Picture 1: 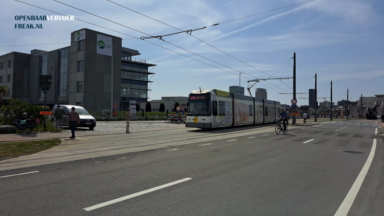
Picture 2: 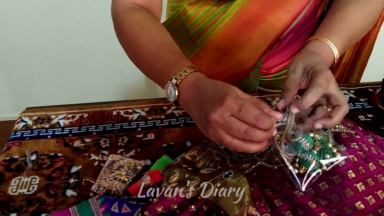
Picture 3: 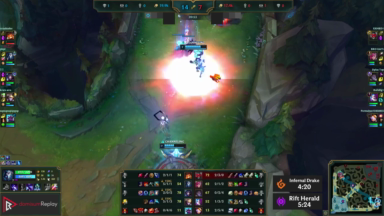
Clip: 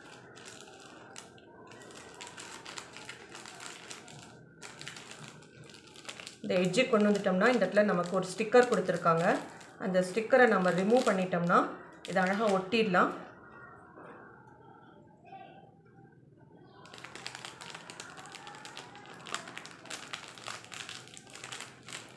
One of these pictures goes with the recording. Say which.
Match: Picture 2